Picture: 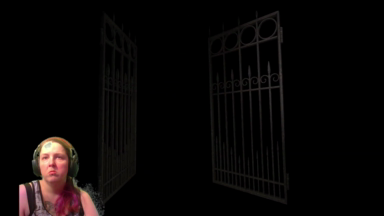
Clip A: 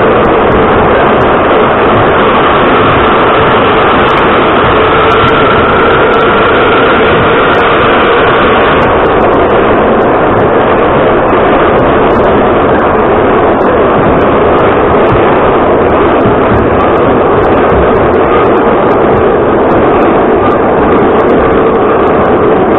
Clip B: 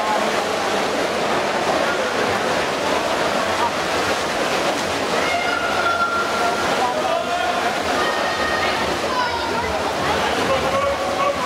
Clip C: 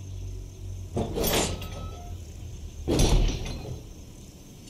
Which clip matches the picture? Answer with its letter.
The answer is C